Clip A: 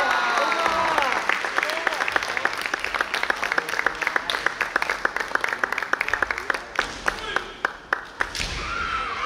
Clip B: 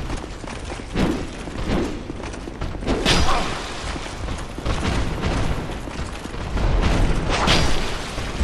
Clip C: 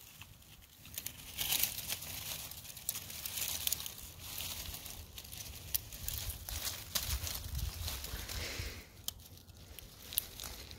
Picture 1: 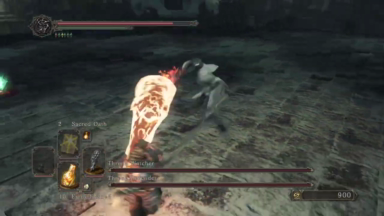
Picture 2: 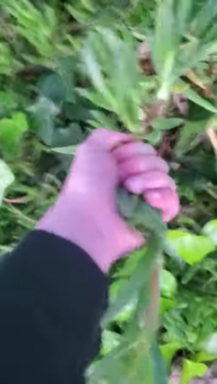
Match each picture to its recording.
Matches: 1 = B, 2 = C